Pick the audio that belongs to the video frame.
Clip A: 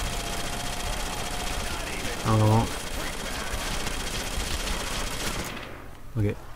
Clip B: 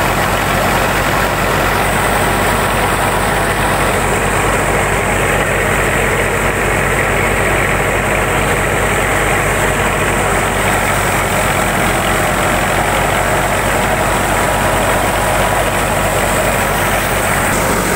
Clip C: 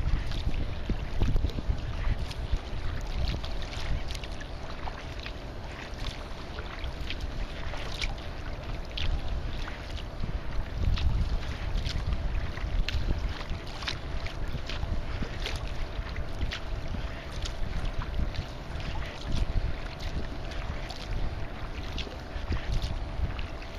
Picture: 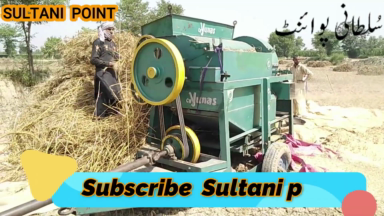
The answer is B